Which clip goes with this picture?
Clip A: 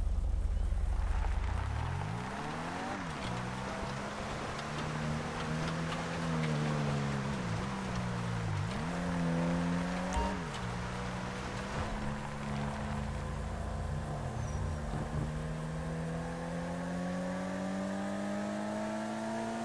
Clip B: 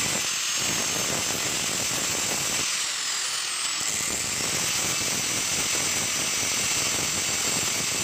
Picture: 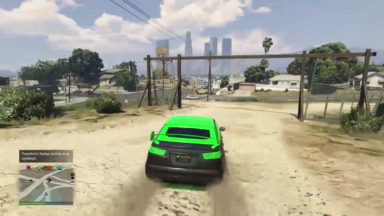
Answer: A